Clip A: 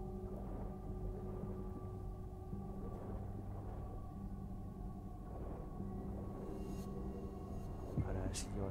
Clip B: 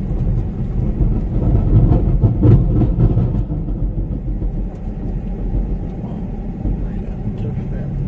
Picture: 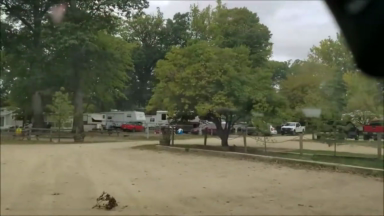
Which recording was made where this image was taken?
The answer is B